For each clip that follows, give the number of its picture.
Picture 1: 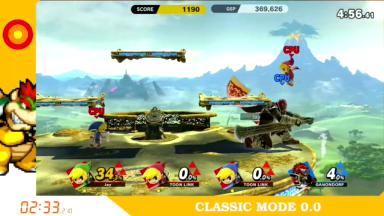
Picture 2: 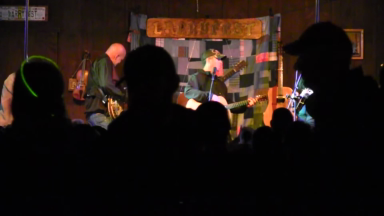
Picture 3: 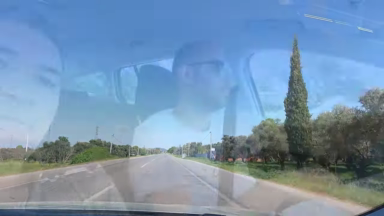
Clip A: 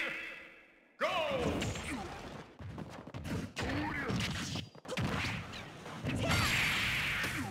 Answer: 1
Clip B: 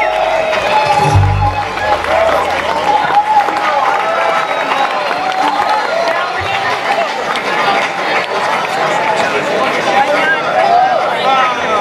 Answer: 2